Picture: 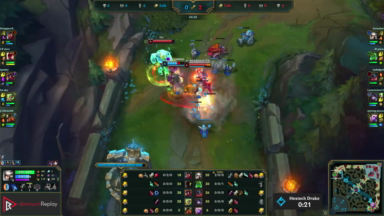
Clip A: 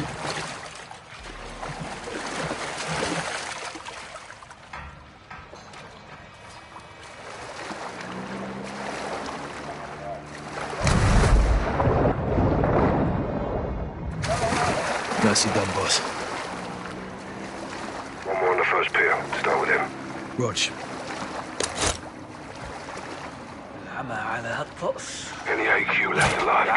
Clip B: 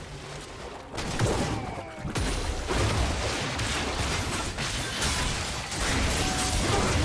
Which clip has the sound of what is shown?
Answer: B